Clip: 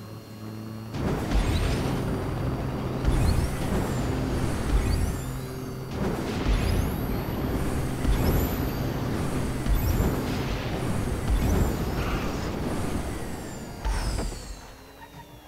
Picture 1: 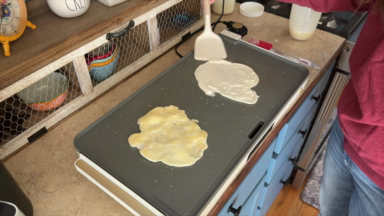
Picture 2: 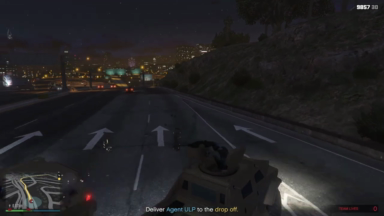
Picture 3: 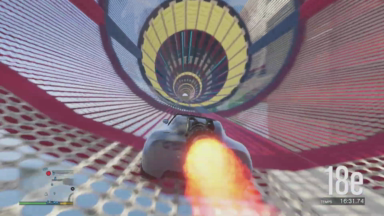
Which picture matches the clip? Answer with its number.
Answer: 3